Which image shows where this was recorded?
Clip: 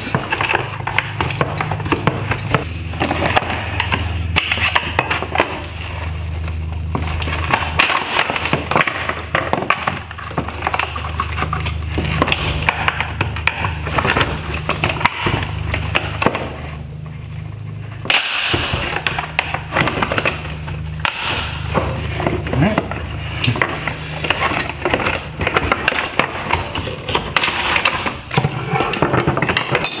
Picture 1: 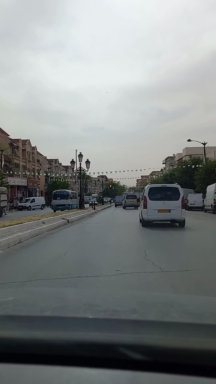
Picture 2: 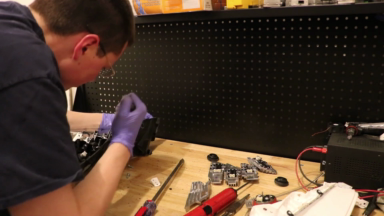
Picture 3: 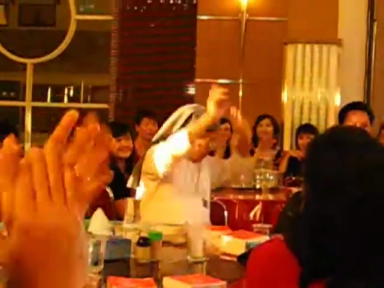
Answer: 2